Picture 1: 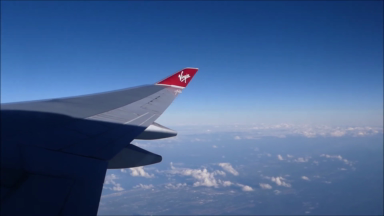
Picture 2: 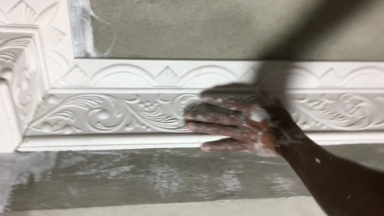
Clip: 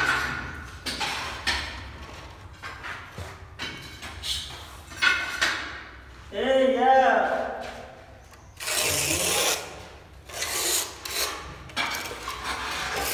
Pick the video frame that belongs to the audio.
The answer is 2